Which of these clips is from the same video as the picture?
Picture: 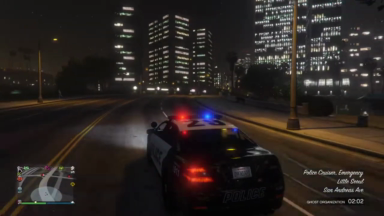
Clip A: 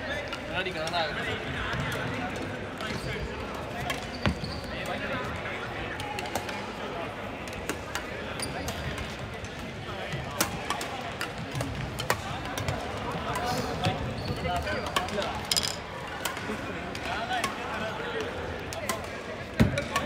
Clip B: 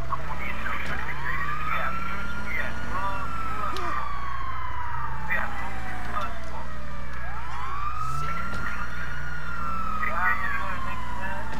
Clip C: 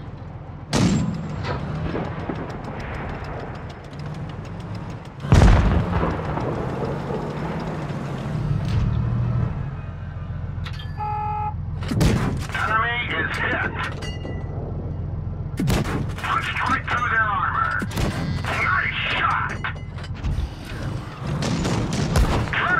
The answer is B